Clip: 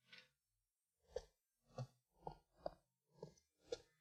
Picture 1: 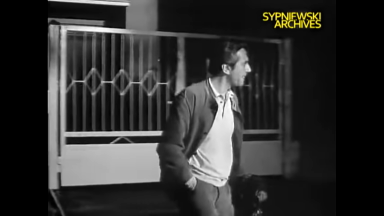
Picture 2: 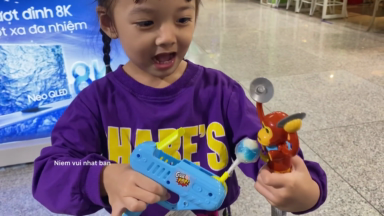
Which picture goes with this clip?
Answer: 1